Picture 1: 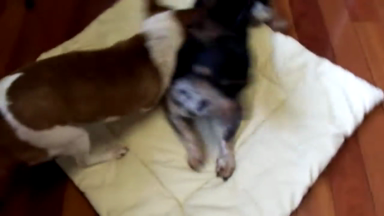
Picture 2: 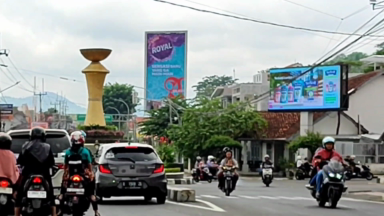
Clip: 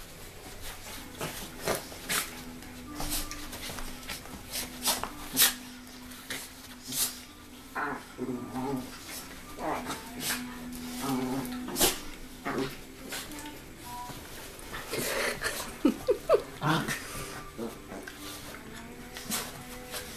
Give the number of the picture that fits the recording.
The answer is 1